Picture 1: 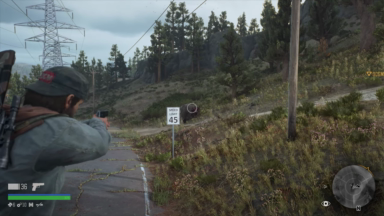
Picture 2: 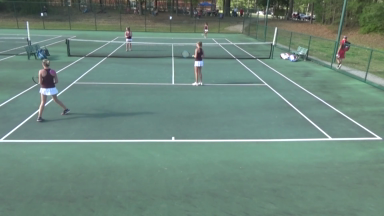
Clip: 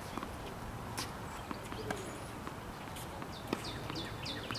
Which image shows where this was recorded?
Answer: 2